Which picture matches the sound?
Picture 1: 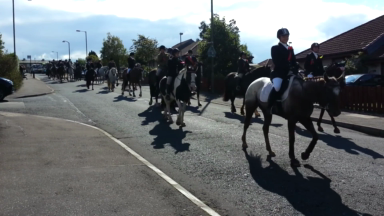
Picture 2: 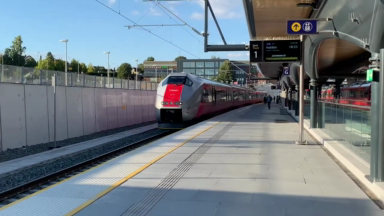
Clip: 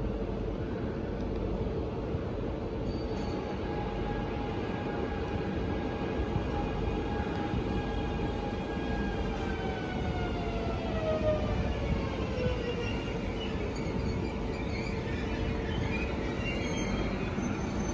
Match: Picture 2